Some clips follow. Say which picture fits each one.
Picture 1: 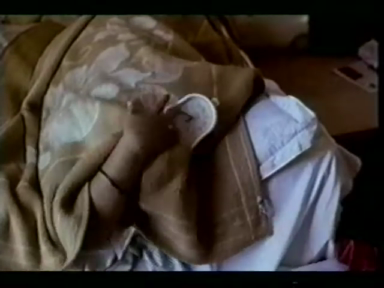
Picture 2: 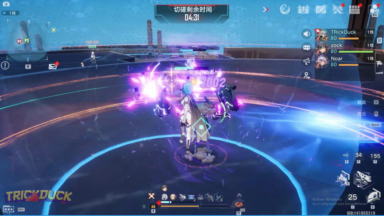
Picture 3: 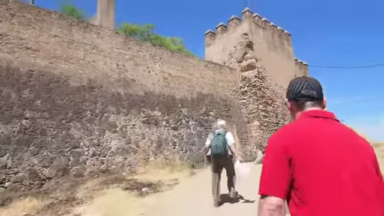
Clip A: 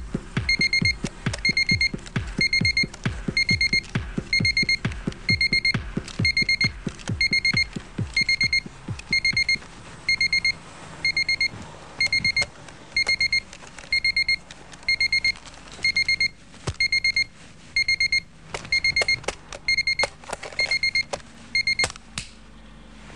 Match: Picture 1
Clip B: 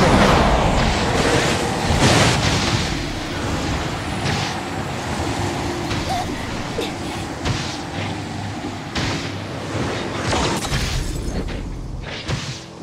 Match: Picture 2